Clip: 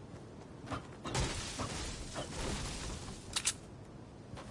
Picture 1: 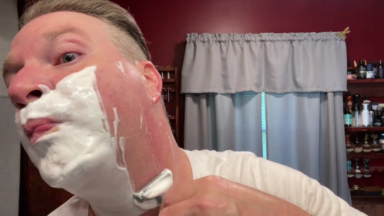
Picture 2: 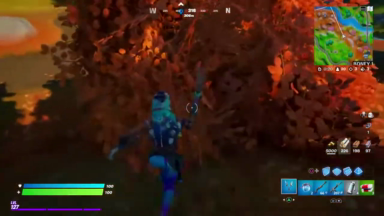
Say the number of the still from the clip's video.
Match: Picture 2